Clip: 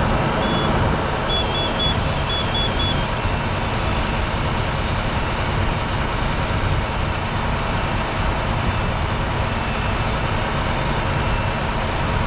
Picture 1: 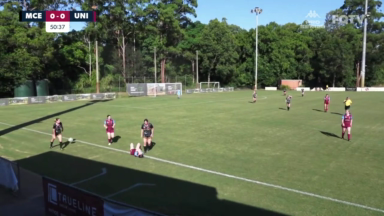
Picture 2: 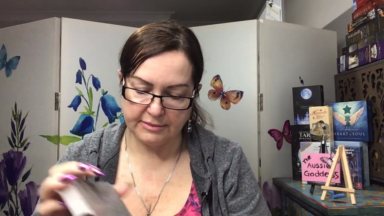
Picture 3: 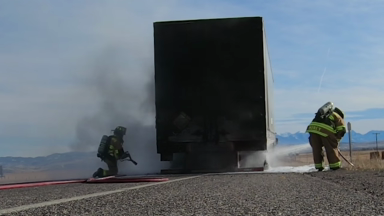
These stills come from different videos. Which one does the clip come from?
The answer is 3